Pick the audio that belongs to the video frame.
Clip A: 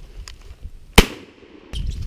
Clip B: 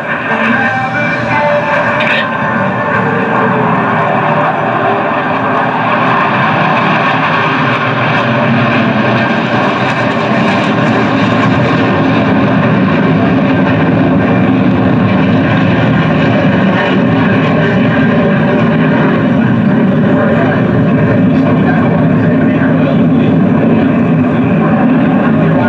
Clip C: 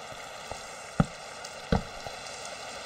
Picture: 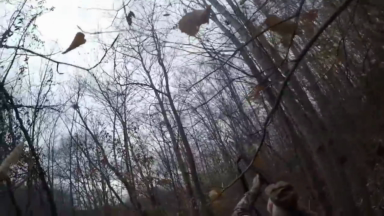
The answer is A